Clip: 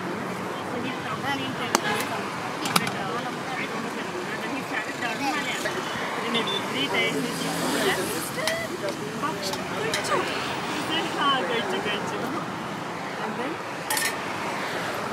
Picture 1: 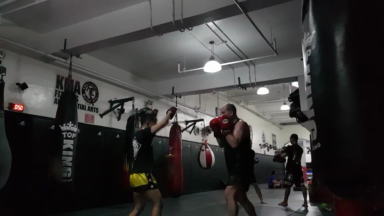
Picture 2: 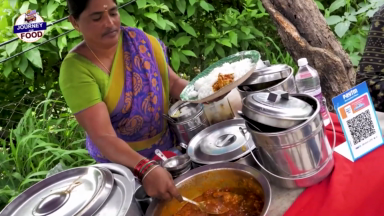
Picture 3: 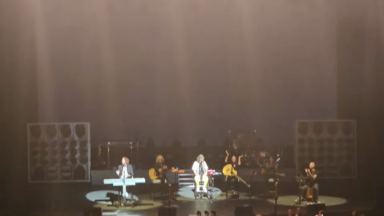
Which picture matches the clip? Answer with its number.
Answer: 2